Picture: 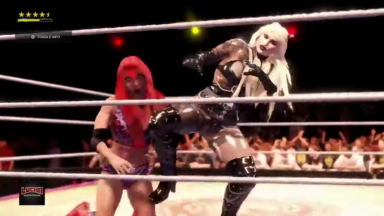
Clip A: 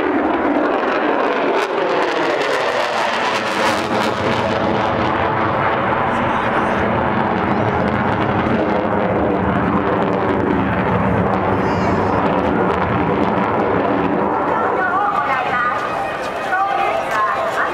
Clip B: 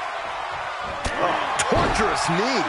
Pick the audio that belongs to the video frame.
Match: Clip B